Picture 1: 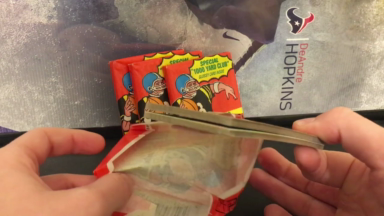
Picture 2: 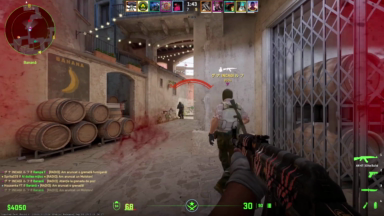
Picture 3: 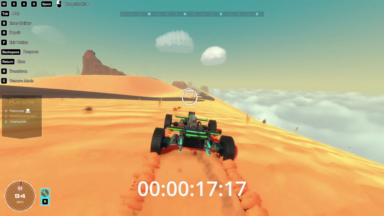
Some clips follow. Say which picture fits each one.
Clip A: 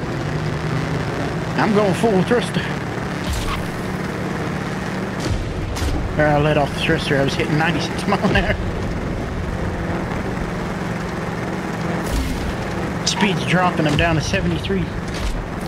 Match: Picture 3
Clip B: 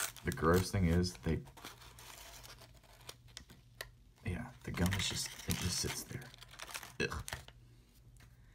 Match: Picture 1